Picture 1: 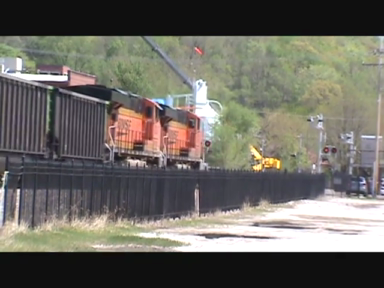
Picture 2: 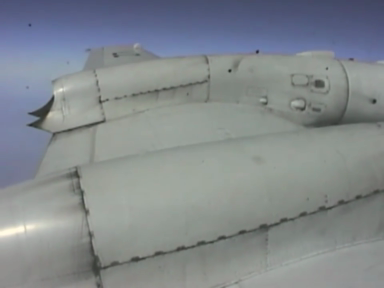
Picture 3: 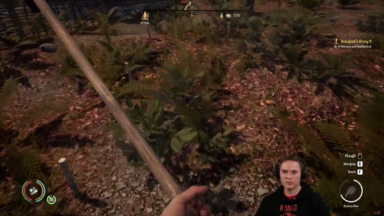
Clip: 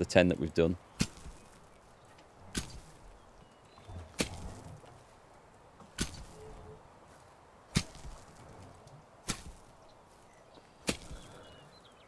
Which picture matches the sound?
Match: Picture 3